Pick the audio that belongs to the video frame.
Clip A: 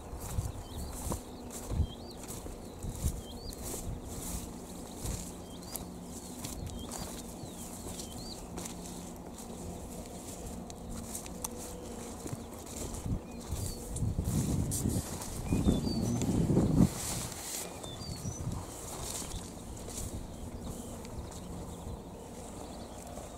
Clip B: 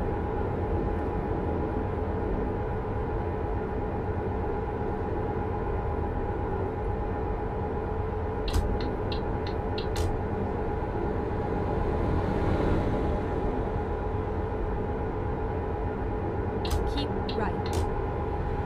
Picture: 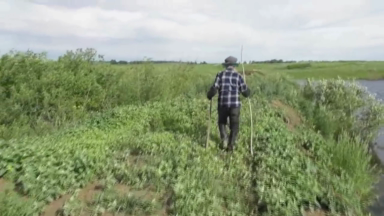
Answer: A